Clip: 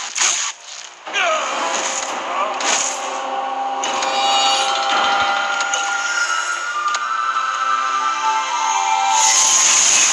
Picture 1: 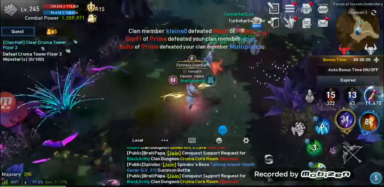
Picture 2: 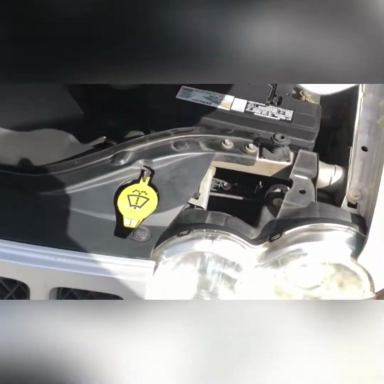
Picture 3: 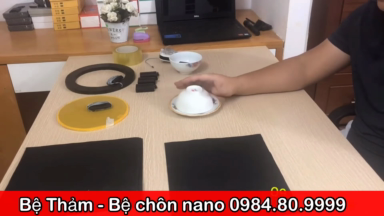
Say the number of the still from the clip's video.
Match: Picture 1